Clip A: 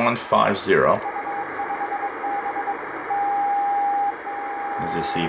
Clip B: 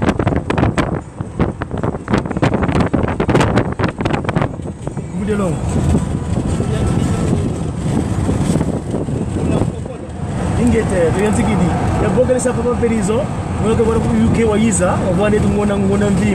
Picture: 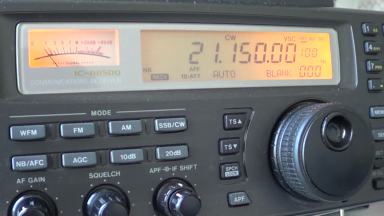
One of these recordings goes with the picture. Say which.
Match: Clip A